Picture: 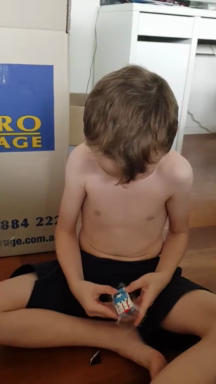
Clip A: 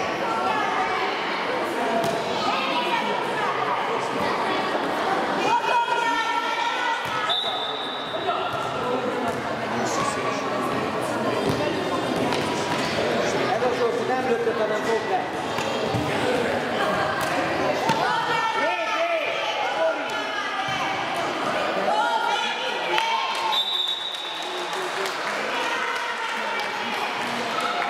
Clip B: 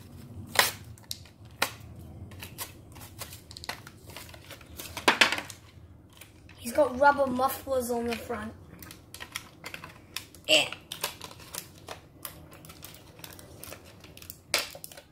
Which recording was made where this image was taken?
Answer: B